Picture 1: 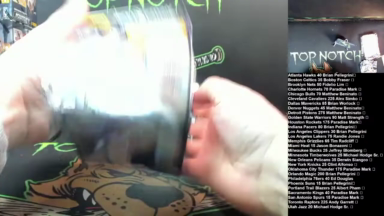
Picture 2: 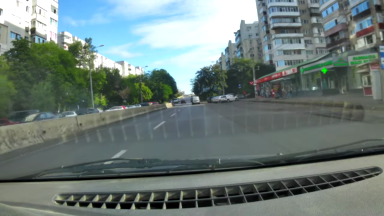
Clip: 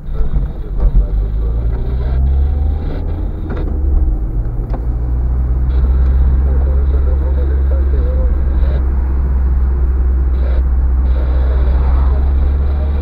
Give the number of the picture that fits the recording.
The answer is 2